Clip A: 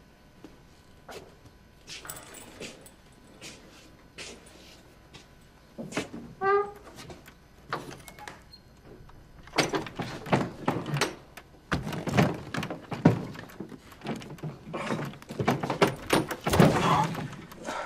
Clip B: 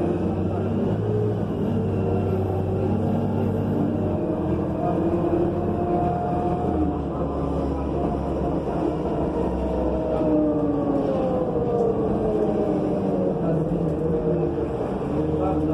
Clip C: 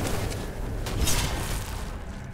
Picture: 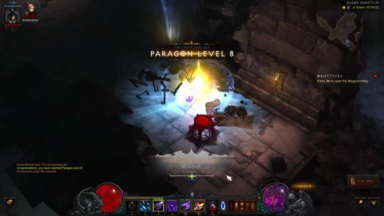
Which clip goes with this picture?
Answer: C